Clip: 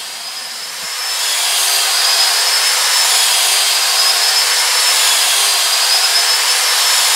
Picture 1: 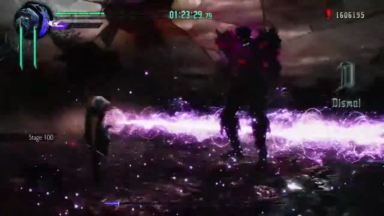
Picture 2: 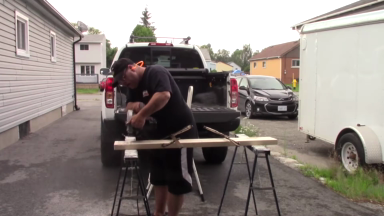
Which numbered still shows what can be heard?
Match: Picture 2